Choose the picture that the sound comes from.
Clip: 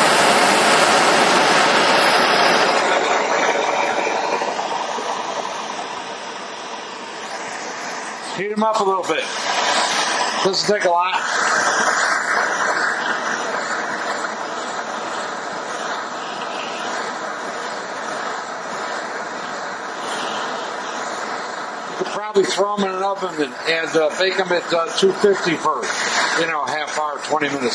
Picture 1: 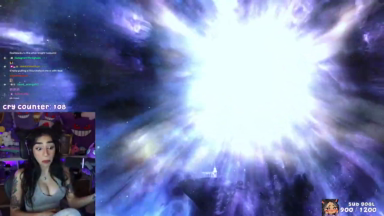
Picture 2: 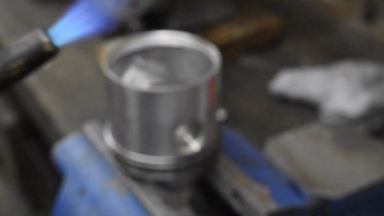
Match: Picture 2